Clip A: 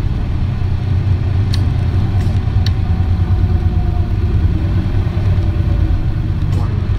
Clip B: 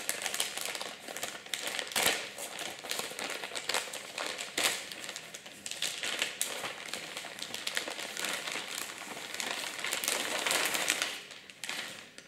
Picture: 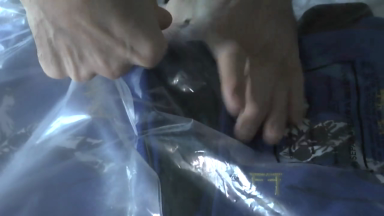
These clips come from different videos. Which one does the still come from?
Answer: B